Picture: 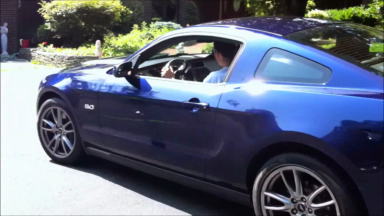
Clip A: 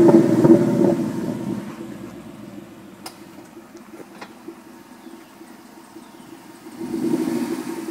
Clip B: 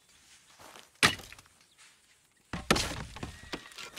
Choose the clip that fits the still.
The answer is A